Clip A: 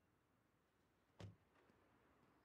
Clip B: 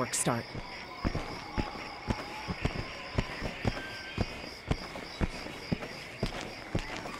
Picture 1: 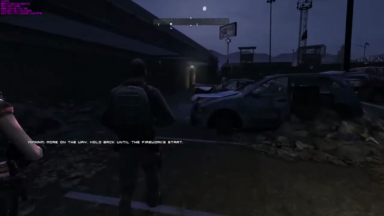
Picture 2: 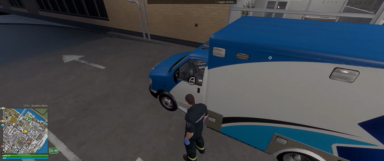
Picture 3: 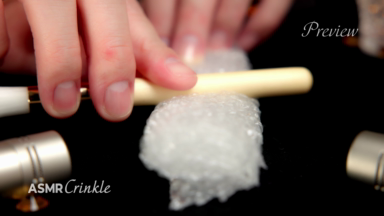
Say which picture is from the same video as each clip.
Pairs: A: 2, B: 1